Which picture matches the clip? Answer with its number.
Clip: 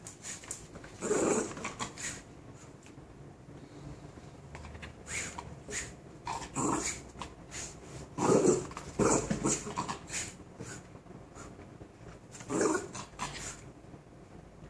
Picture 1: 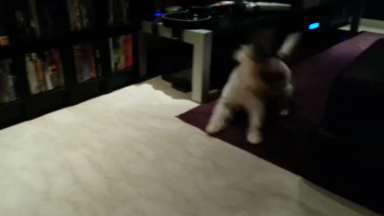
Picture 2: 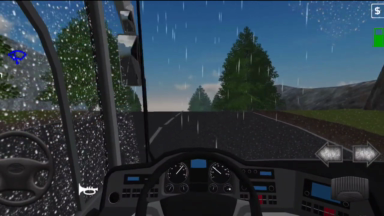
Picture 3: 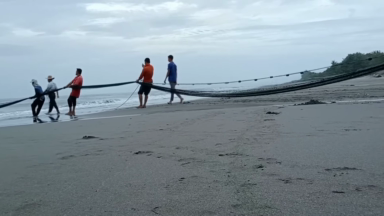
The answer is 1